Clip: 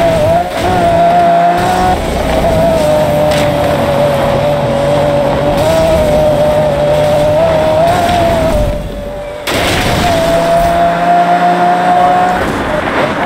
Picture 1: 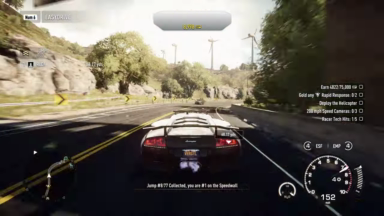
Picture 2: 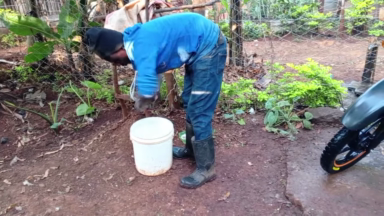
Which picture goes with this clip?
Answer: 1